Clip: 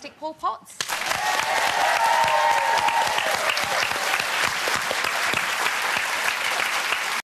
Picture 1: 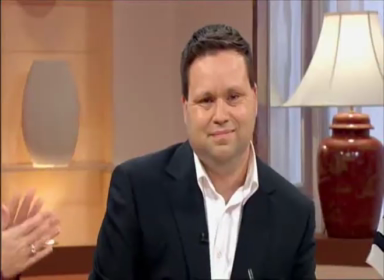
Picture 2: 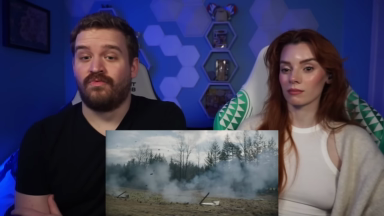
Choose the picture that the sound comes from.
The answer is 1